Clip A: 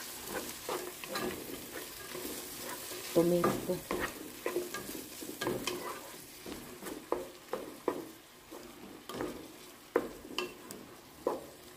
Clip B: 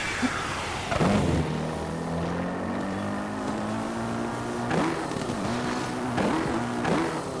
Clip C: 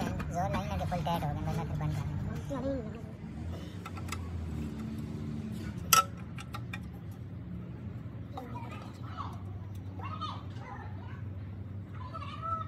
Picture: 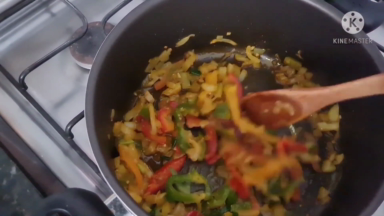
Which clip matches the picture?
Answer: A